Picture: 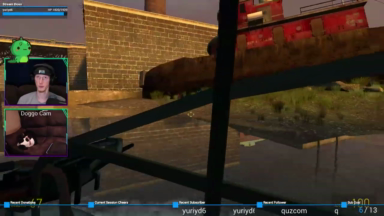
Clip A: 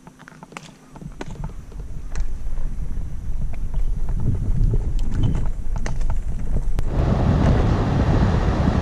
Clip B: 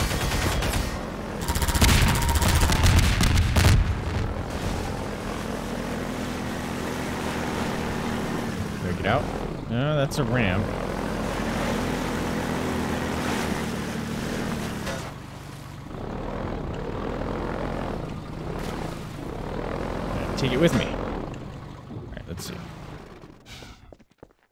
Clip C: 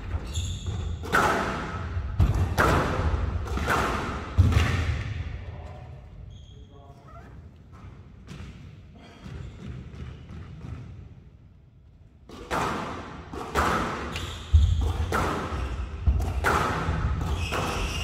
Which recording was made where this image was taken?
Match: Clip B